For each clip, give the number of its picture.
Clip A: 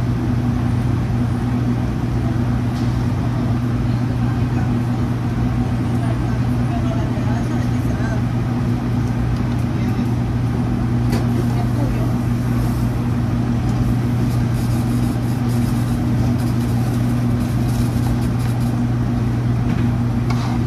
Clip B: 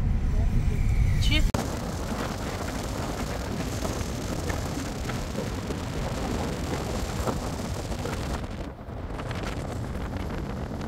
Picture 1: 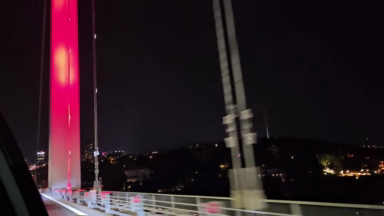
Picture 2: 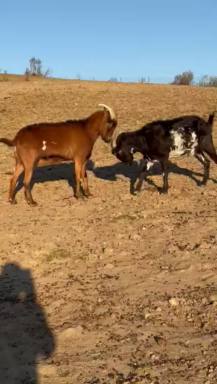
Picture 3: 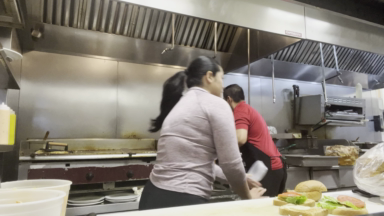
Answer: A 3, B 1